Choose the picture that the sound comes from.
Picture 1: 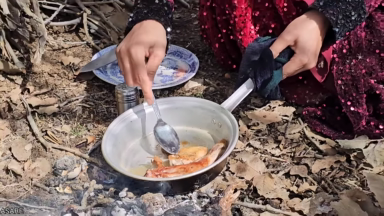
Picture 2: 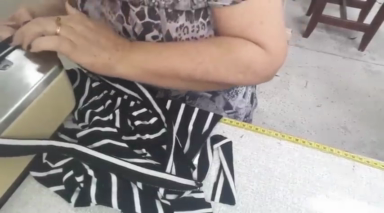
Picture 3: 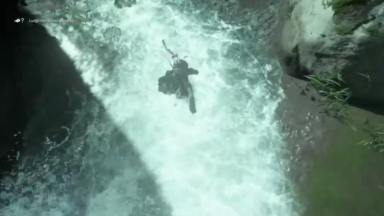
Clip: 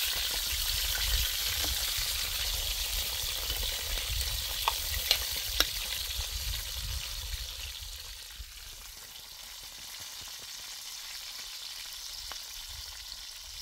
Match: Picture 1